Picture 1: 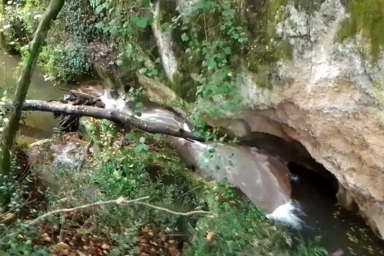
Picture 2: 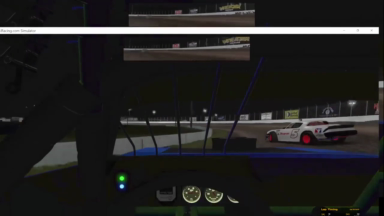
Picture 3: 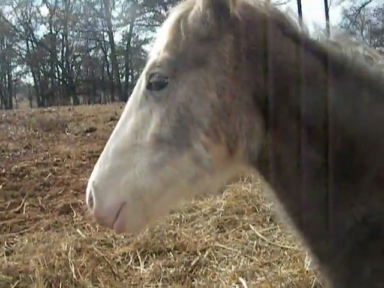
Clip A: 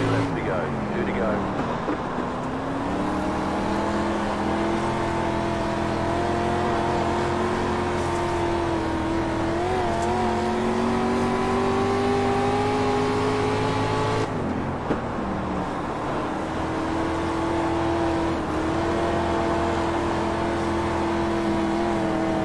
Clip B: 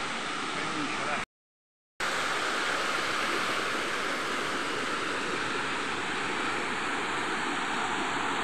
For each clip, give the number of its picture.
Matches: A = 2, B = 1